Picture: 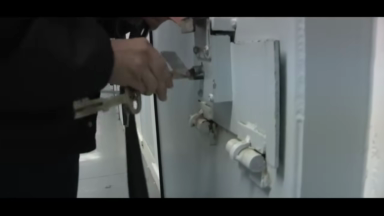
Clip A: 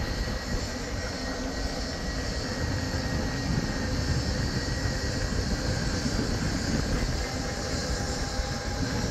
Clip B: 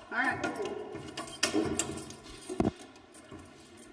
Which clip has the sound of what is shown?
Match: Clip B